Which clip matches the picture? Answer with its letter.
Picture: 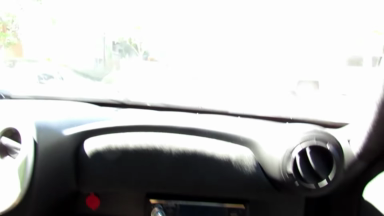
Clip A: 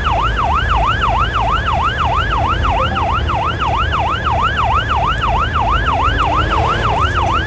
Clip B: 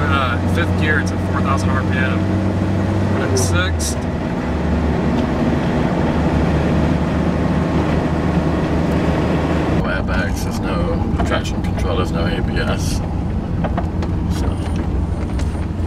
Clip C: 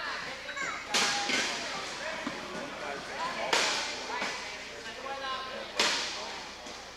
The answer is B